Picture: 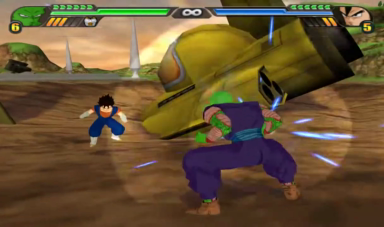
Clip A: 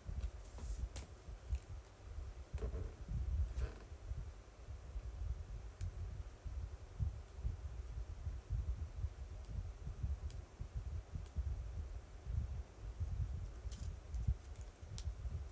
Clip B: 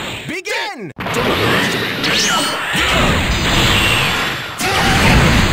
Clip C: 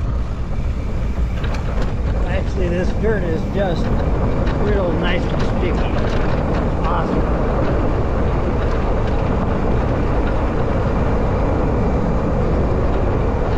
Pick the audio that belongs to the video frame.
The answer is B